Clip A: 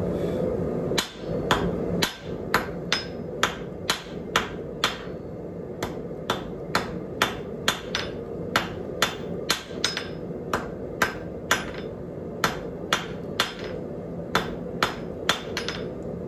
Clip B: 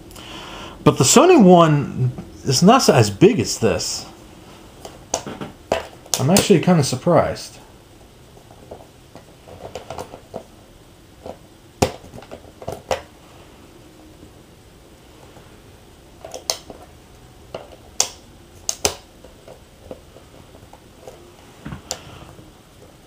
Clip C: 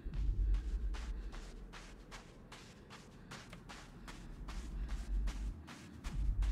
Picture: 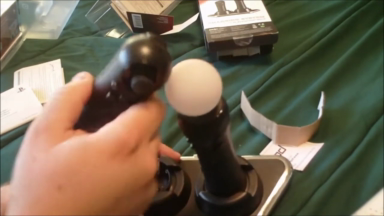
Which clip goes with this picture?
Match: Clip B